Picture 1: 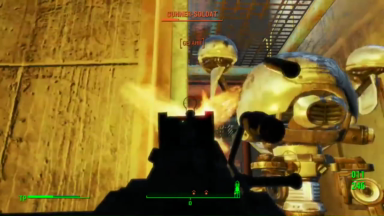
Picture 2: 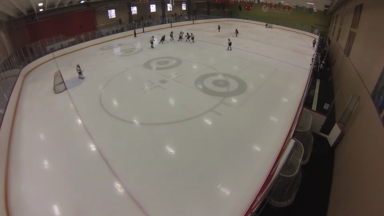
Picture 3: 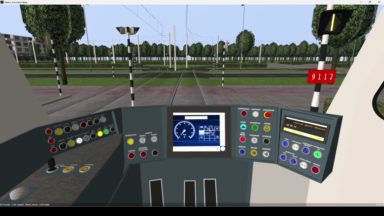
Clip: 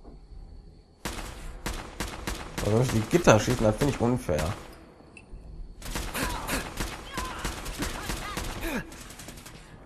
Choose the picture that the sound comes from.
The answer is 1